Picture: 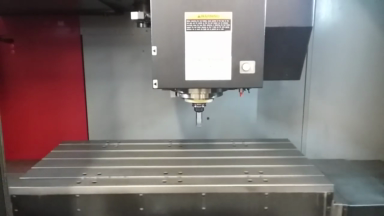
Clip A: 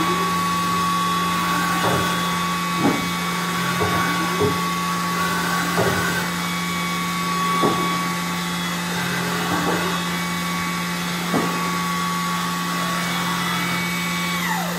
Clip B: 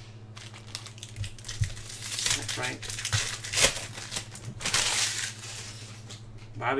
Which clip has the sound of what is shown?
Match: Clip A